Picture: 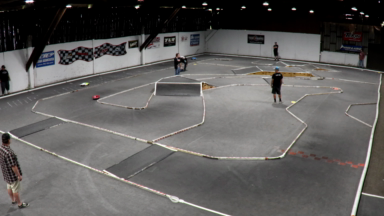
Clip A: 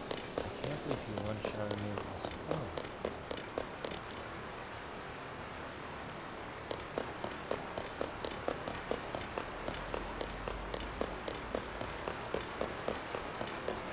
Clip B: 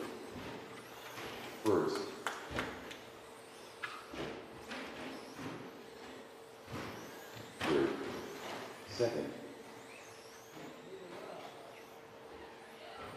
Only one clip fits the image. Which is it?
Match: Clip B